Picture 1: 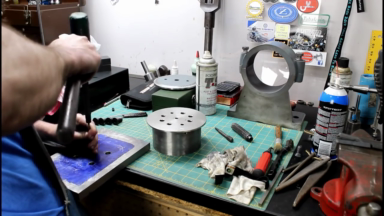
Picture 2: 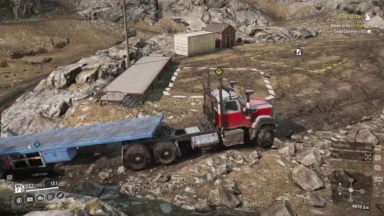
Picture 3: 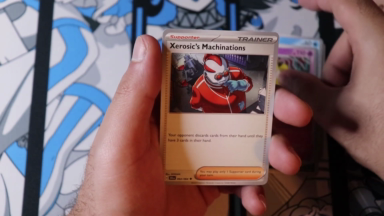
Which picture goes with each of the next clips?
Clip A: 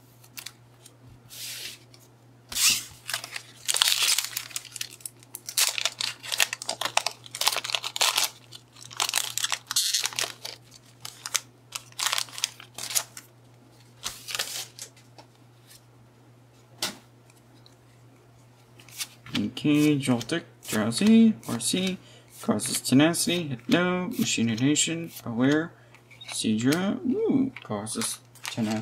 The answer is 3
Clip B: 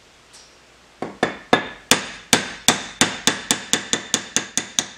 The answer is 1